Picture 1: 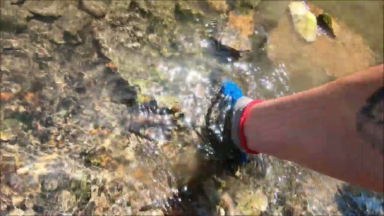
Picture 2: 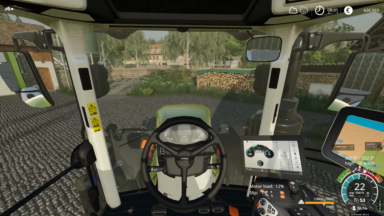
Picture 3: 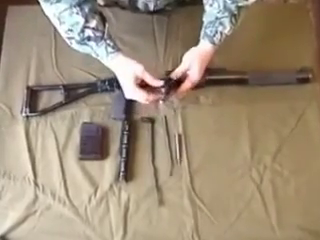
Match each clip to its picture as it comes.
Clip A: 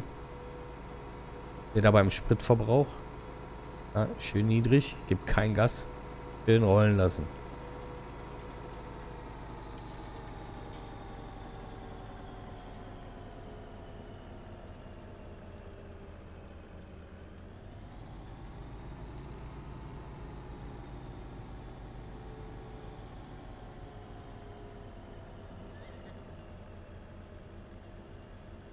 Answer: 2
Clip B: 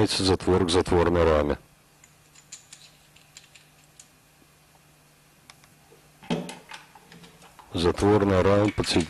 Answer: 3